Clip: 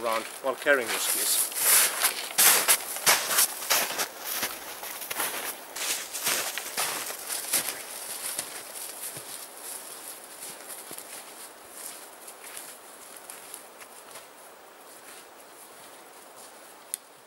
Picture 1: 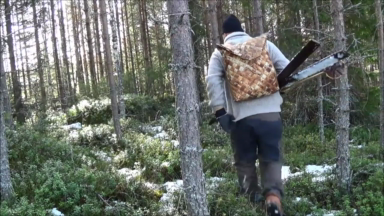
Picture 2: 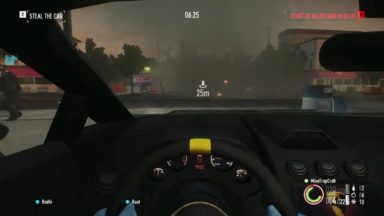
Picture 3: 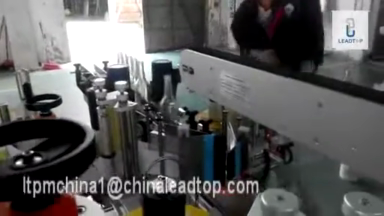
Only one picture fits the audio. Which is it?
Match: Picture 1